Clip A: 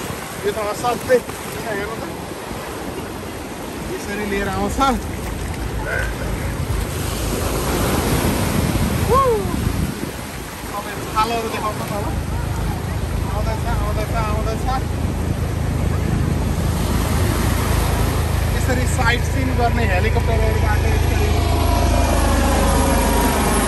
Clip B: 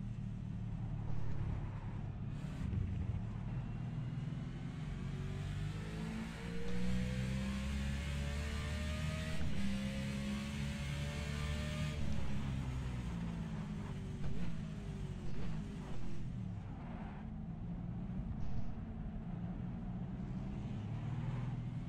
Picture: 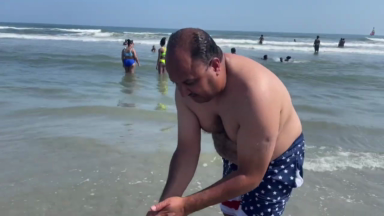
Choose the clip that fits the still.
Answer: A